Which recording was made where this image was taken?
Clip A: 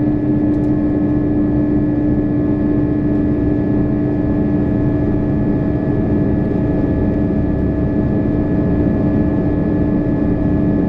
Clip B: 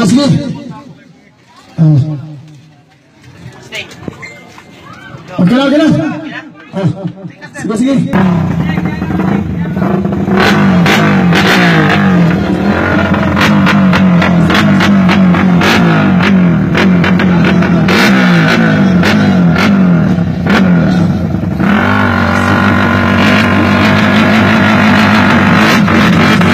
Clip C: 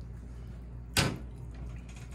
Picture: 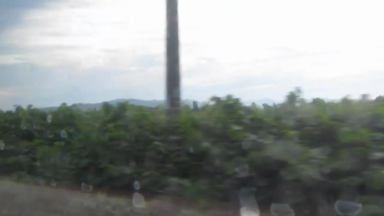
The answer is A